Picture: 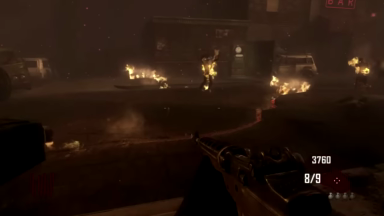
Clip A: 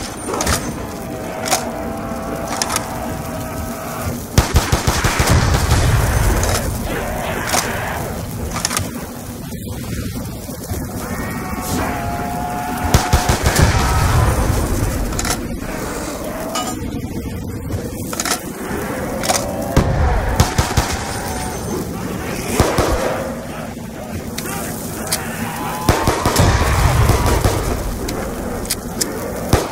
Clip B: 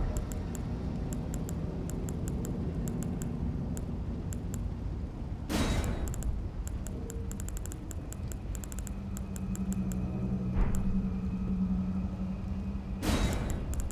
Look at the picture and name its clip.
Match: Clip A